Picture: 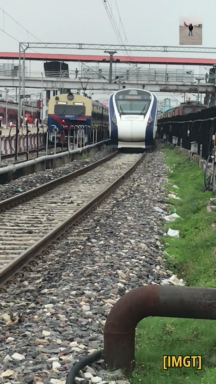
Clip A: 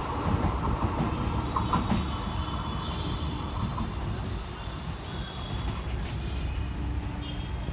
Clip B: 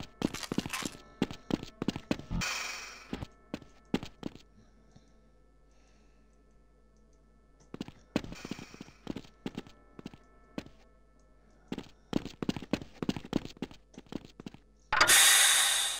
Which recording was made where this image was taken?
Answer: A